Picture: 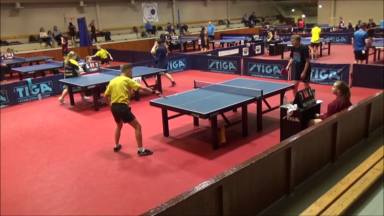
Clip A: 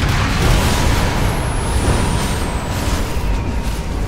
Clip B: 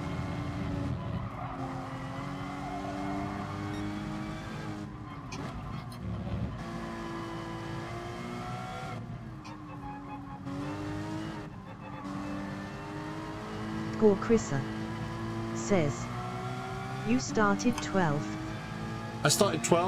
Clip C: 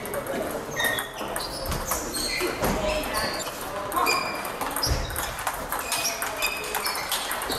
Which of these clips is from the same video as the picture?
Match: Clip C